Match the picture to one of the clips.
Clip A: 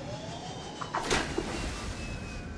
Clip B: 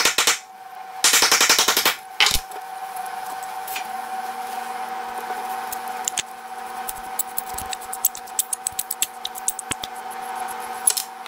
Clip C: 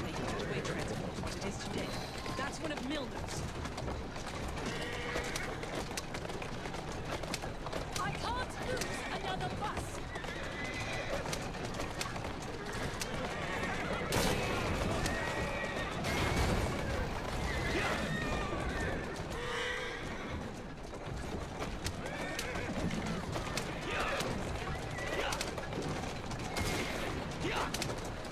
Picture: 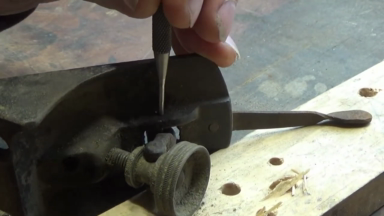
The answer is B